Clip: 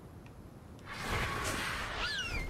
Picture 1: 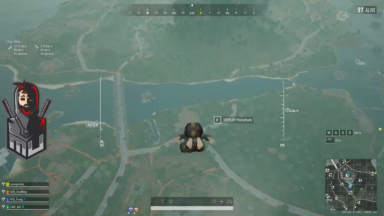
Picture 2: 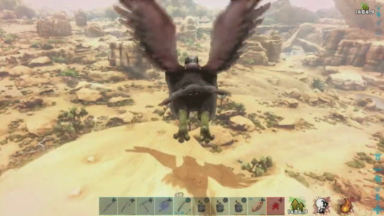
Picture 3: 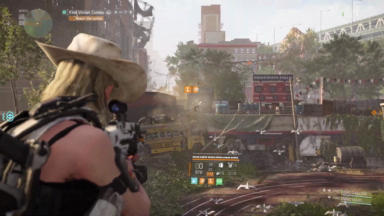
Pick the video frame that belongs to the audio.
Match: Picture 2